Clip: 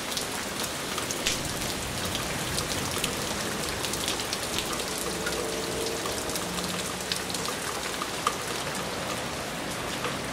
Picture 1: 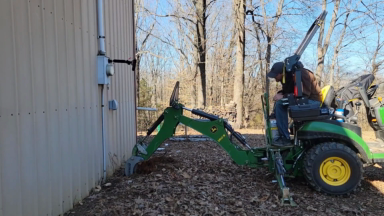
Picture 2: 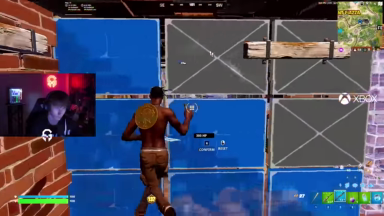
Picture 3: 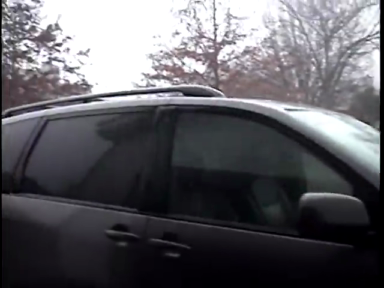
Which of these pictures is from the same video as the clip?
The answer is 3